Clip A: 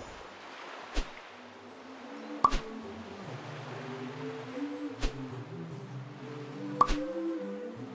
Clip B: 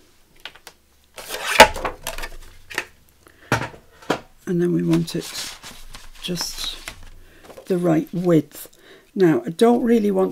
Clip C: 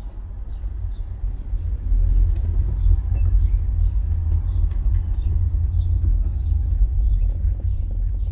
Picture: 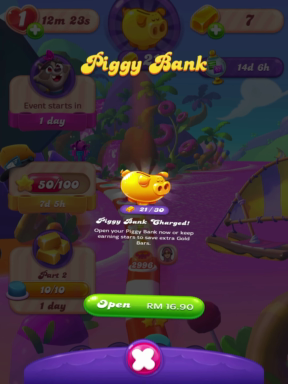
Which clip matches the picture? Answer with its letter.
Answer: A